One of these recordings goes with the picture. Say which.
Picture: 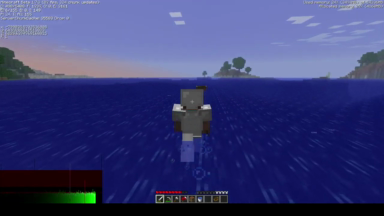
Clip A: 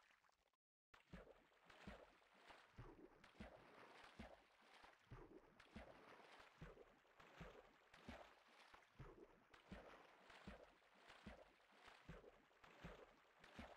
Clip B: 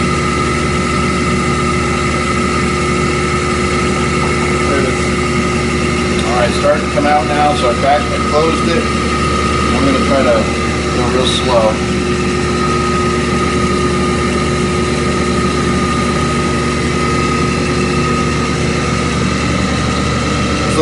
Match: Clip A